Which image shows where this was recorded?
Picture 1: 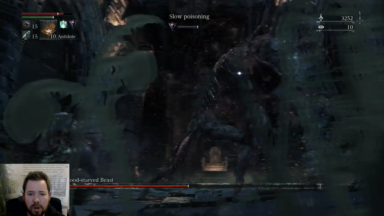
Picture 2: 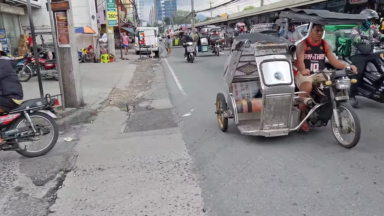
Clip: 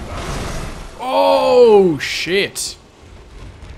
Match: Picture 1